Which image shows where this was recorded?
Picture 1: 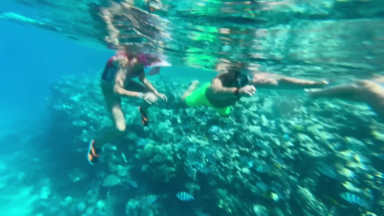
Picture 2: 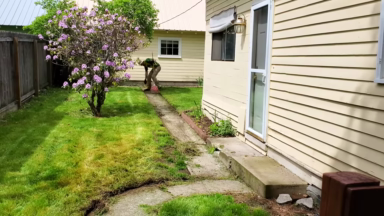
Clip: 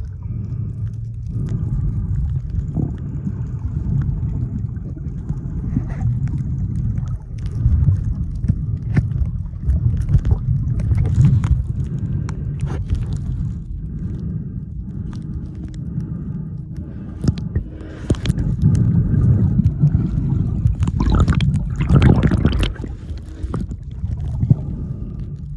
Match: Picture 1